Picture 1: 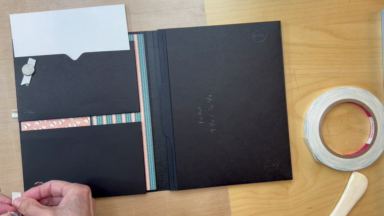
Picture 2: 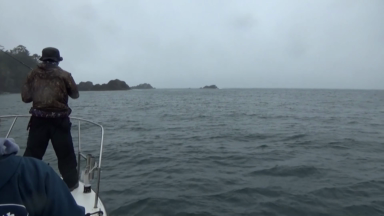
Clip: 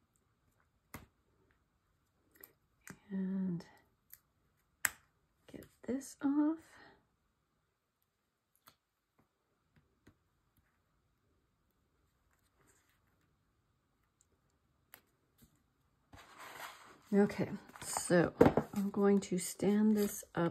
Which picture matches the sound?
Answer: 1